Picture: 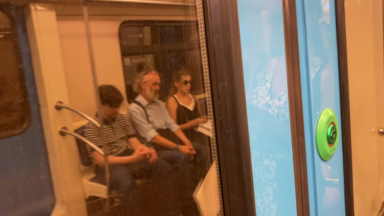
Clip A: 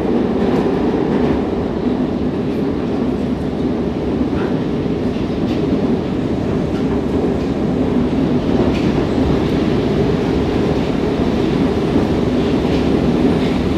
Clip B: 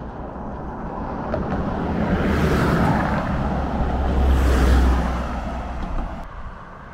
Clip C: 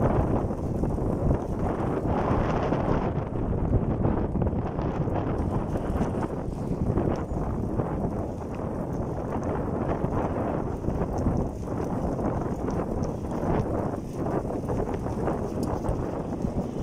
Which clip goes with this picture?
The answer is A